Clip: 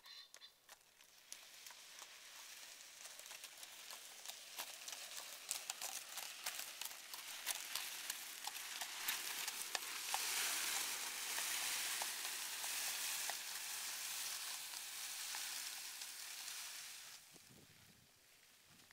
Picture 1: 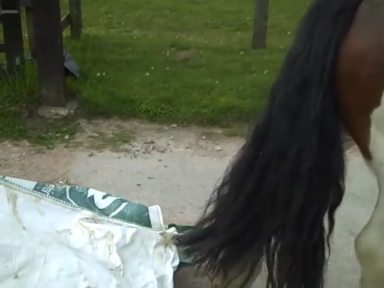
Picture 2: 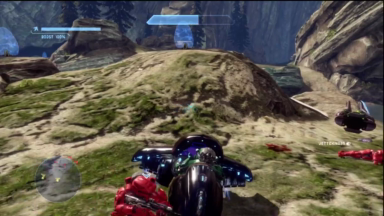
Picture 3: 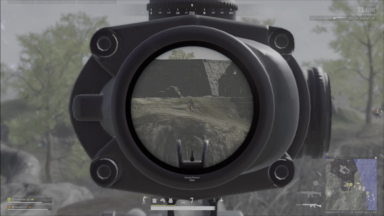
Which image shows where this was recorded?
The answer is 1